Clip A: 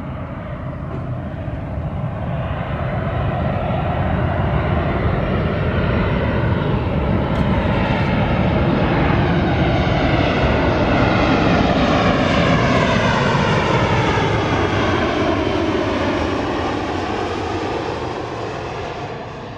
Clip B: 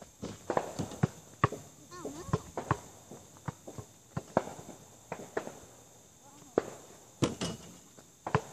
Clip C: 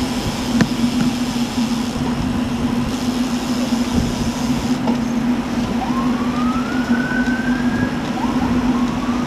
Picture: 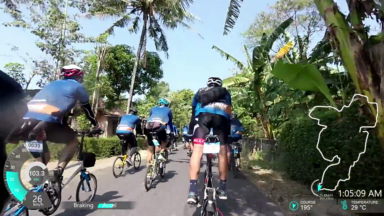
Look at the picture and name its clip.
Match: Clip C